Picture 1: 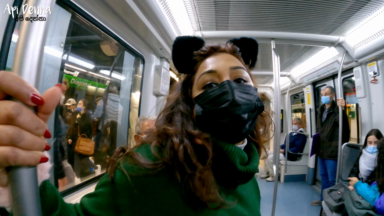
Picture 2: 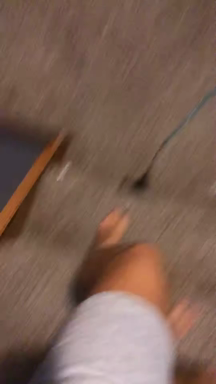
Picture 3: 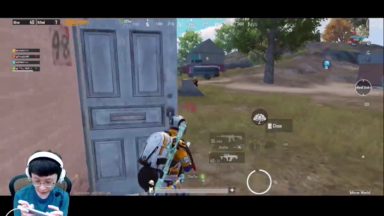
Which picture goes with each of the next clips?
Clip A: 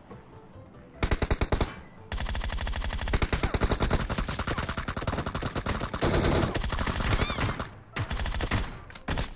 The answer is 3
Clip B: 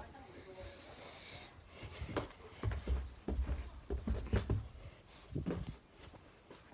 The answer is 2